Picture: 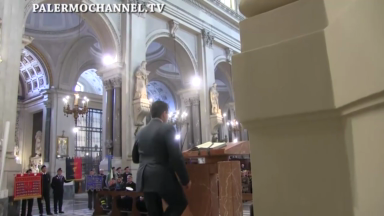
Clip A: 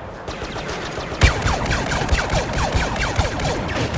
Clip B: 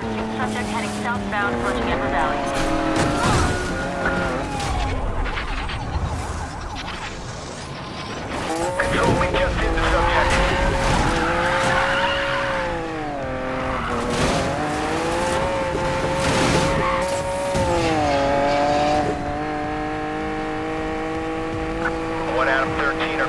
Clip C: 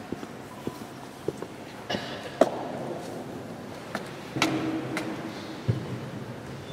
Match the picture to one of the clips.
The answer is C